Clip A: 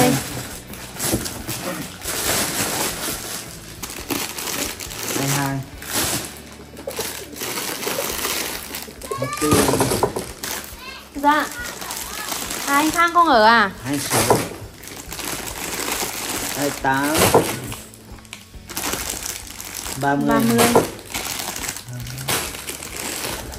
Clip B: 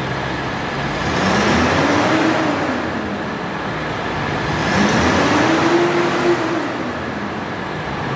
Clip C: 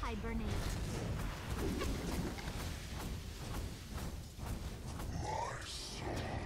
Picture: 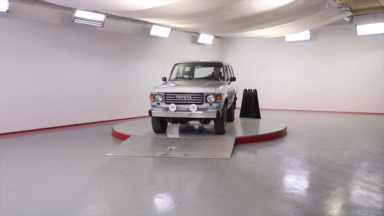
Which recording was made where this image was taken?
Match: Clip B